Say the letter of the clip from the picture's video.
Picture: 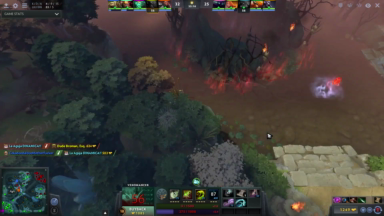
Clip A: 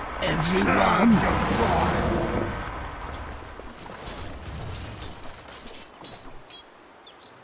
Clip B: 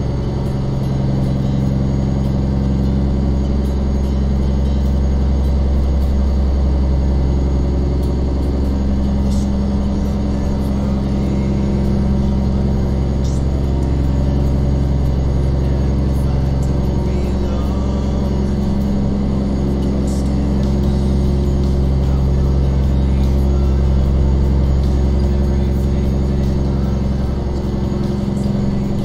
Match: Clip A